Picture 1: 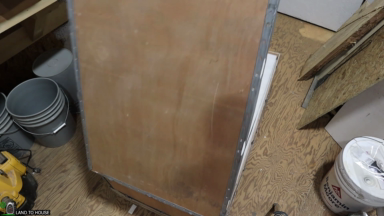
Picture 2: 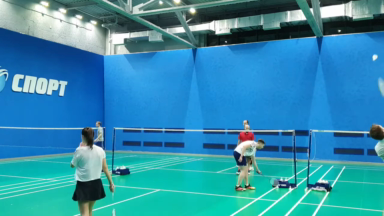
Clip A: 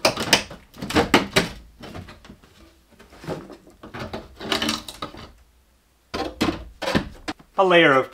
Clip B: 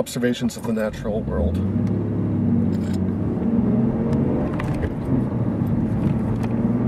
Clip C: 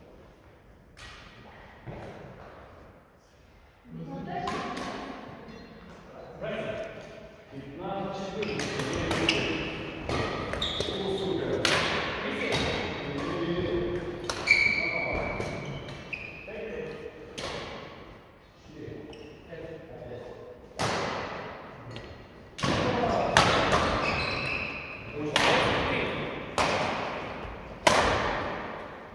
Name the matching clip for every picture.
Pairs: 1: A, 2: C